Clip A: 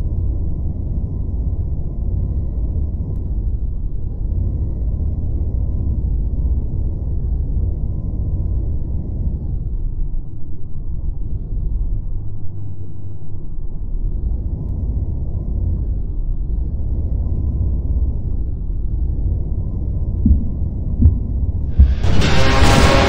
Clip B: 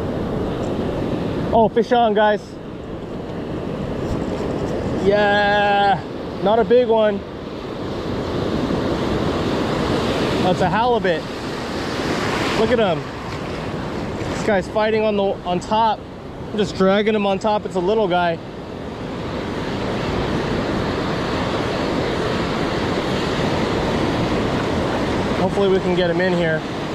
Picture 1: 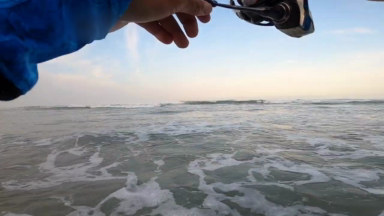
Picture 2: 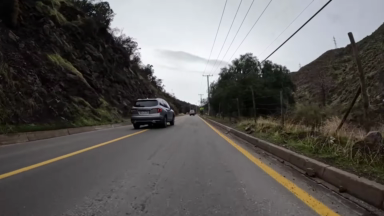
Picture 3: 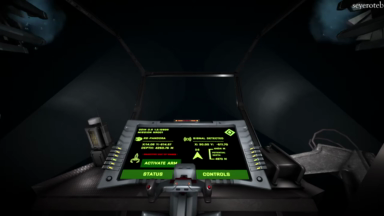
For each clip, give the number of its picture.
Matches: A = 3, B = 1